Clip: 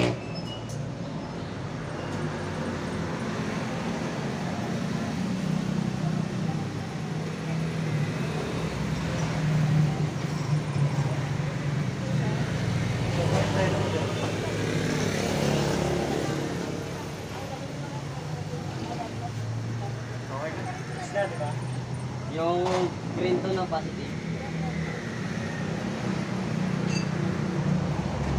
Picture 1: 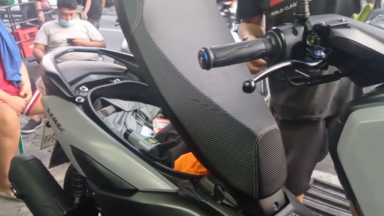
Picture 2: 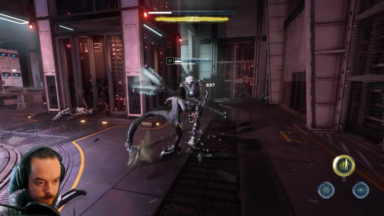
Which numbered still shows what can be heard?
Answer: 1